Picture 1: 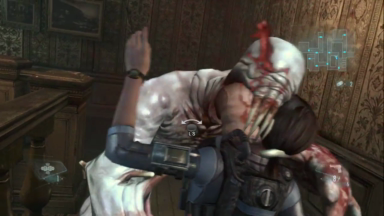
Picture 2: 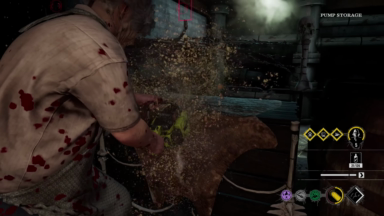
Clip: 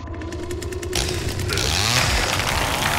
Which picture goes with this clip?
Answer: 2